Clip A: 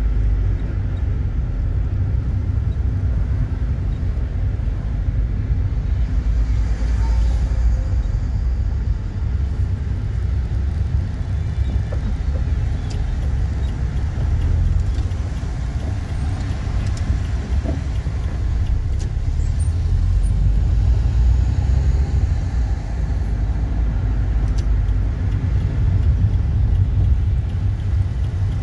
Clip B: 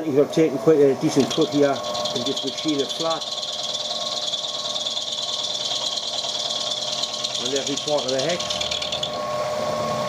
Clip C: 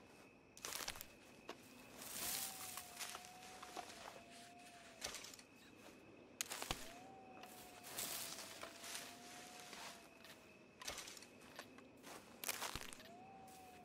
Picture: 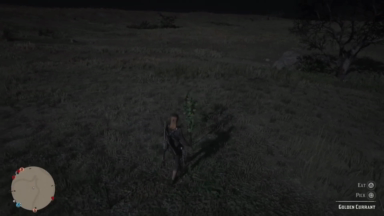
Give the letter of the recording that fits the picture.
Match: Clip C